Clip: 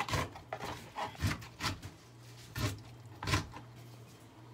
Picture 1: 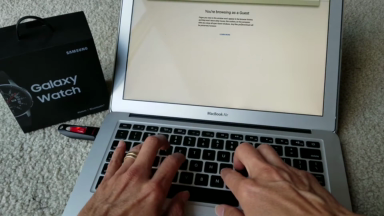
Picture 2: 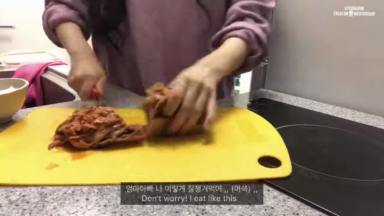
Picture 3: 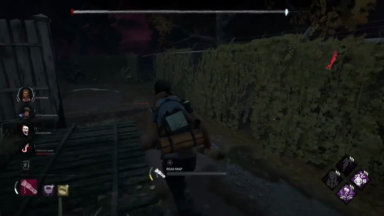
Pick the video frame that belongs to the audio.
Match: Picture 2